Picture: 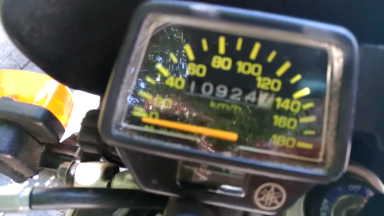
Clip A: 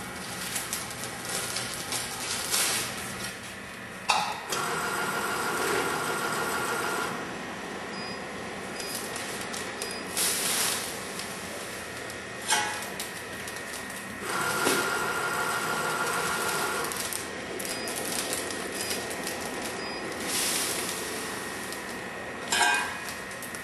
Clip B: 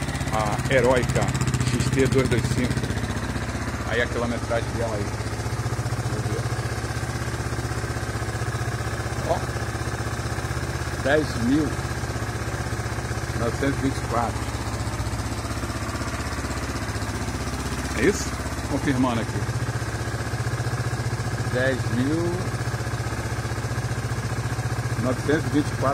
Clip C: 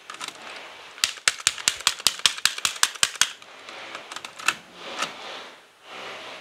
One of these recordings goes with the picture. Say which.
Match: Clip B